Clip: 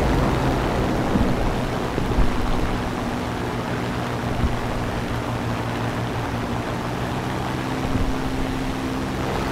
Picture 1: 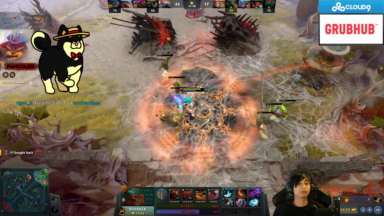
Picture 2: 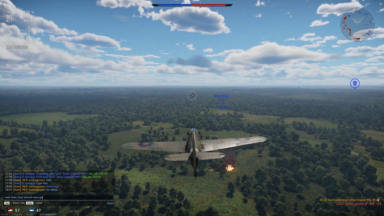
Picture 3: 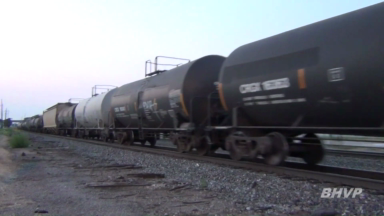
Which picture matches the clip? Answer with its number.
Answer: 2